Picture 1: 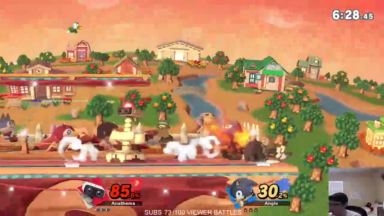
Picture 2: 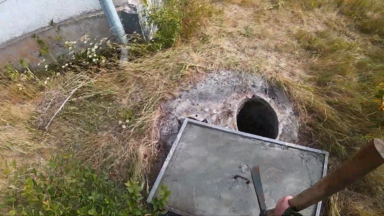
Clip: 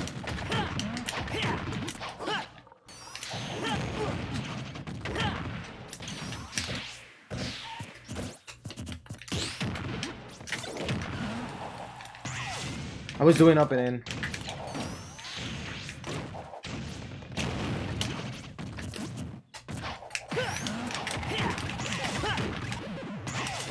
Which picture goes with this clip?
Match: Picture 1